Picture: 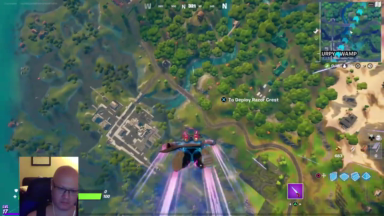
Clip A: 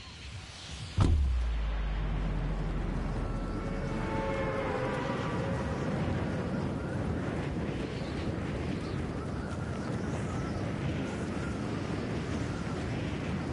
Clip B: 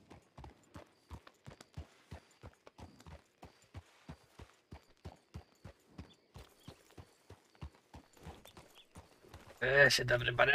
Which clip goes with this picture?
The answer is A